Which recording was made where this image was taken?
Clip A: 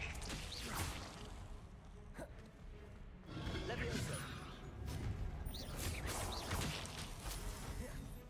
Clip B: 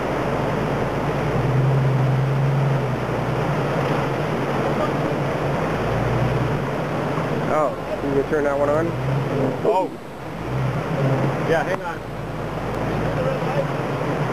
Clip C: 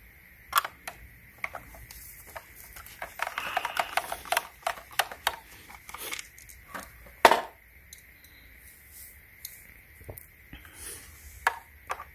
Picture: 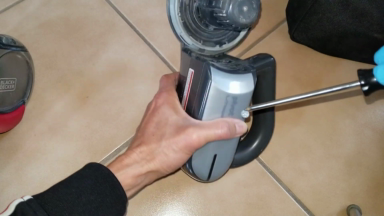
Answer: C